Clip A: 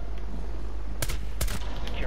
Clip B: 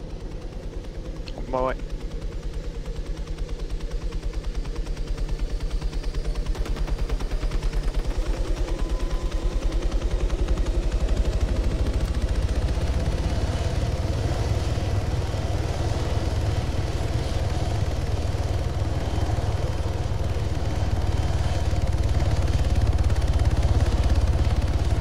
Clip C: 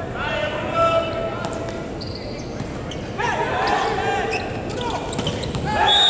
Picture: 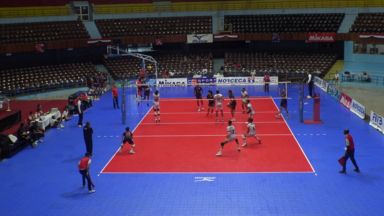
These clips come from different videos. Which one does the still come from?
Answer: C